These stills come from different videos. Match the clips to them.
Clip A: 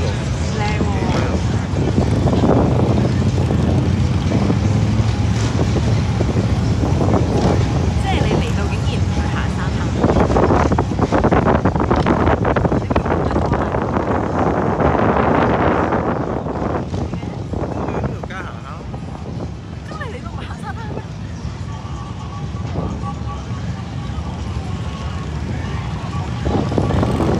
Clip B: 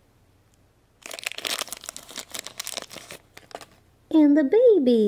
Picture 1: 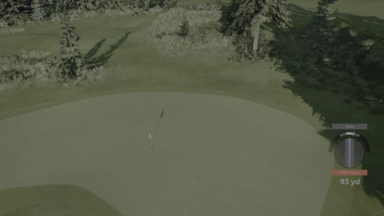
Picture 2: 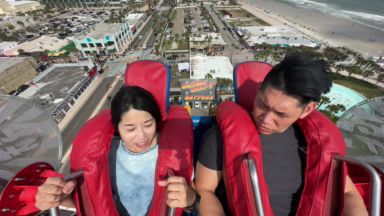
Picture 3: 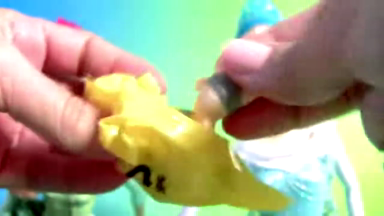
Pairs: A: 2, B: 3